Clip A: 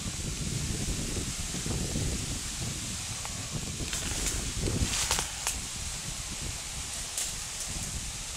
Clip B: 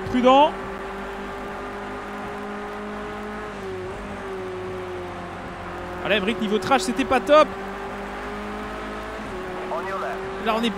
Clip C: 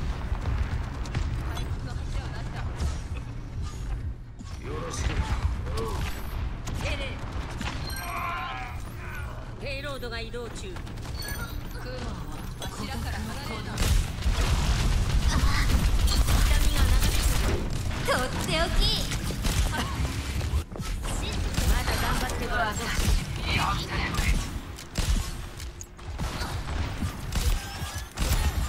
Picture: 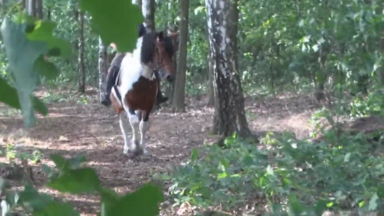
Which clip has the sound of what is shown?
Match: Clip A